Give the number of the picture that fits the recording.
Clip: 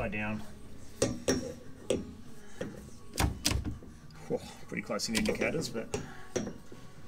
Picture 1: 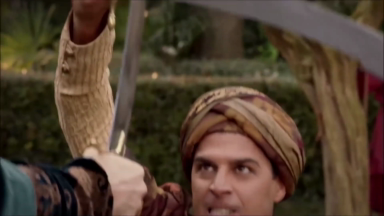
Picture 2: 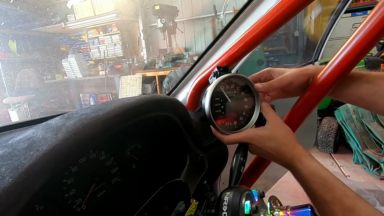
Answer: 2